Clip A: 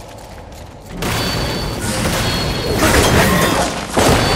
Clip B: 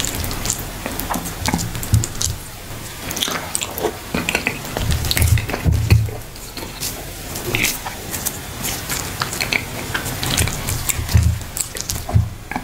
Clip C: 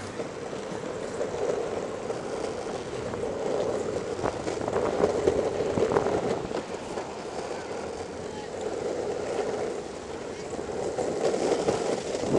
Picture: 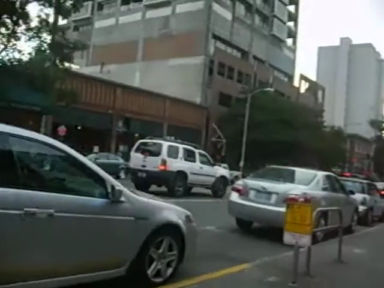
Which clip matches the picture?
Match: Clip C